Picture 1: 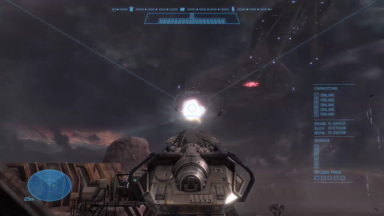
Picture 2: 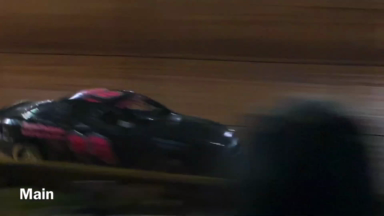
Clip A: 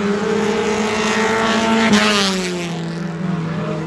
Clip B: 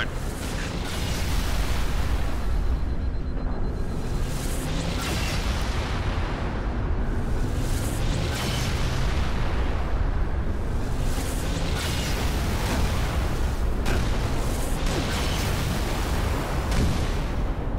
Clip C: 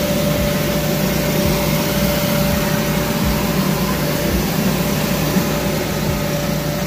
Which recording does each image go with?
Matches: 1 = B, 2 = A